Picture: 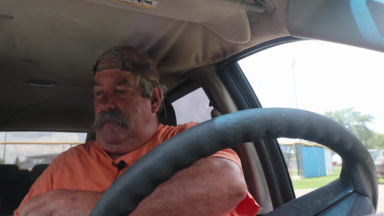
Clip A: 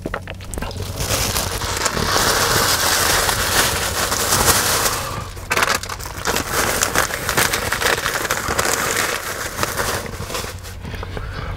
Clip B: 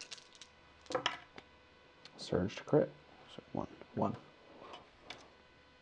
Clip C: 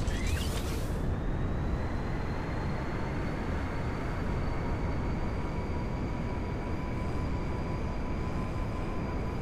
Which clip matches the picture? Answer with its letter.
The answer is A